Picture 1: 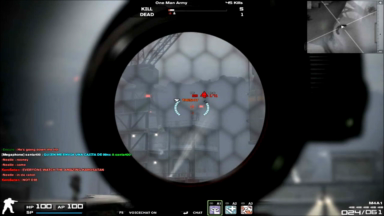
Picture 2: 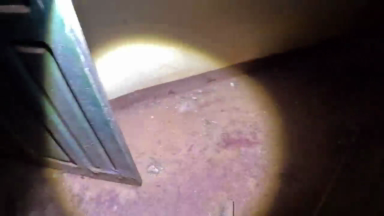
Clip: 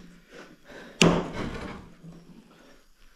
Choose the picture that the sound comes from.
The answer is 2